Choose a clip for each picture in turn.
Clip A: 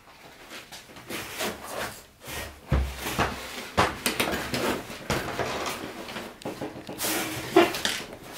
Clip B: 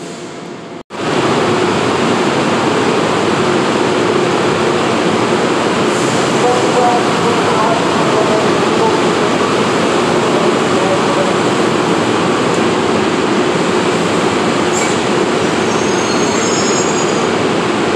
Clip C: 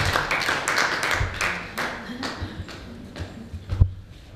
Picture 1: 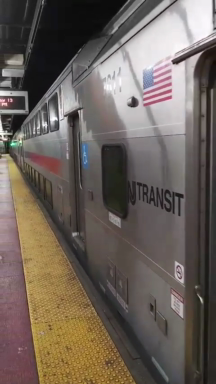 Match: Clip B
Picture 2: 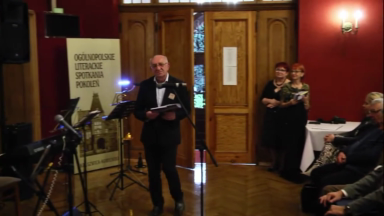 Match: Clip C